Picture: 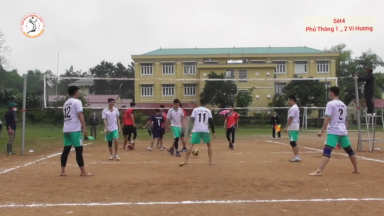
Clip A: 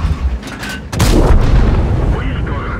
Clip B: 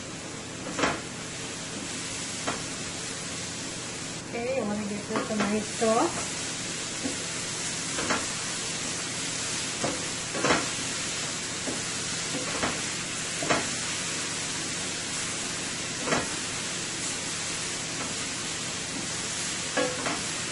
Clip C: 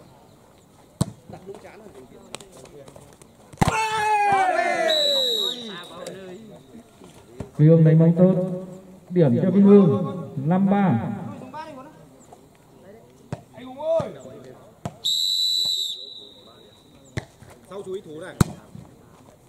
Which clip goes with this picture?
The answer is C